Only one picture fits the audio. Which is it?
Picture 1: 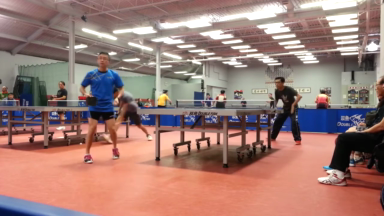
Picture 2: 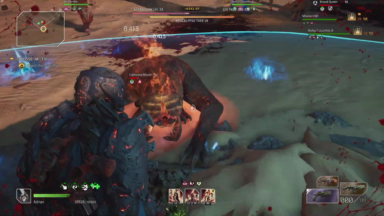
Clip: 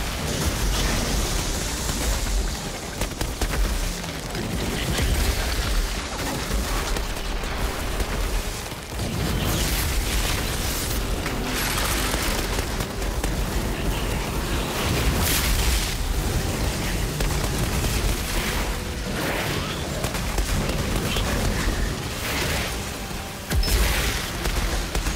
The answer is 2